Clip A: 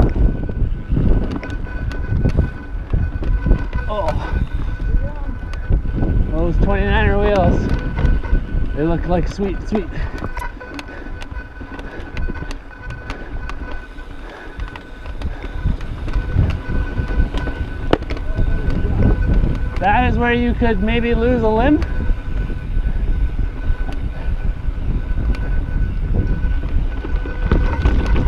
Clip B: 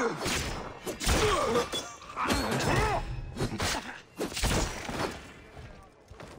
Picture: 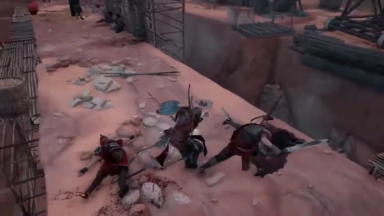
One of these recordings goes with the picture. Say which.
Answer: B